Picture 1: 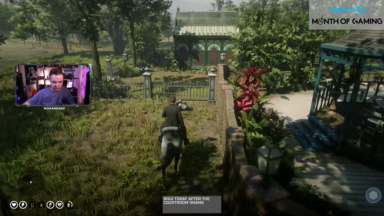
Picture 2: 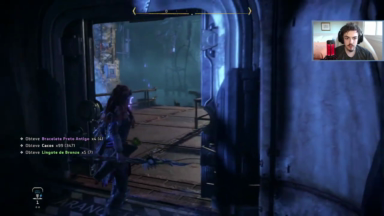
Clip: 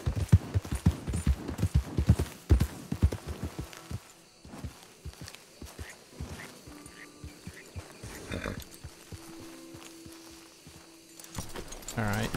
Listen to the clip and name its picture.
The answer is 1